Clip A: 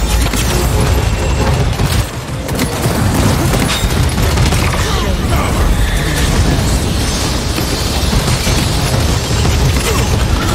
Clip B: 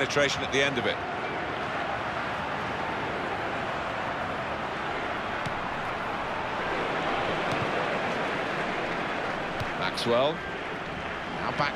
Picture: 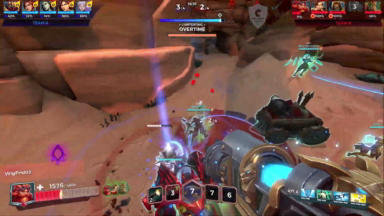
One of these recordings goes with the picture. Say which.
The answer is A